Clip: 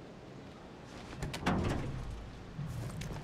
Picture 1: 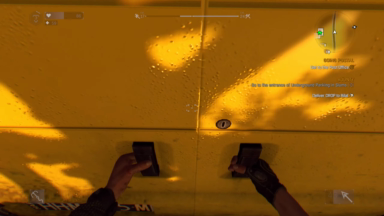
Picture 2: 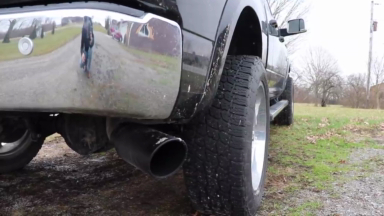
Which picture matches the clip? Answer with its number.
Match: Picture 1